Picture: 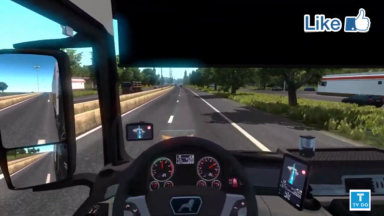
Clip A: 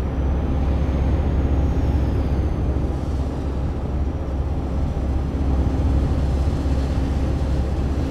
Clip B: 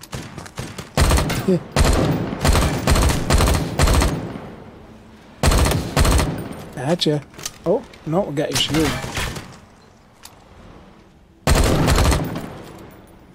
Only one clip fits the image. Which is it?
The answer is A